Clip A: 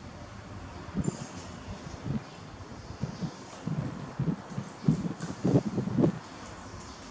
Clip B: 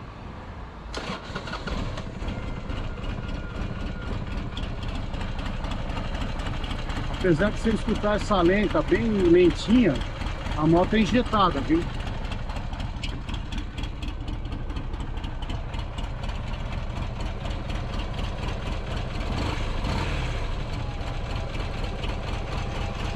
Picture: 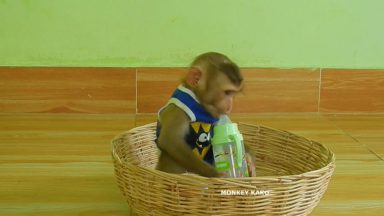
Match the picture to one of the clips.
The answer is A